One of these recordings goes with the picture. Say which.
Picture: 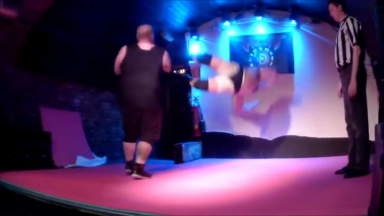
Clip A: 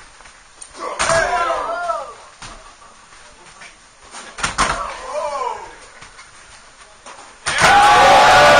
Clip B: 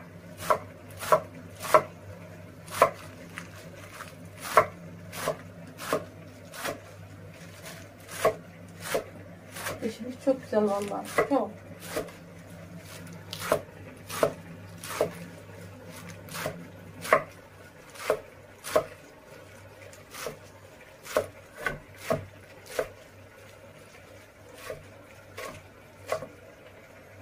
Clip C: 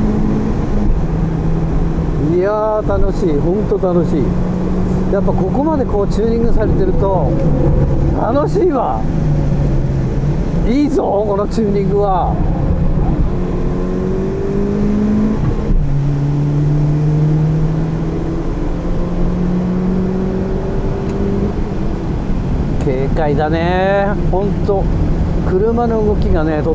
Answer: A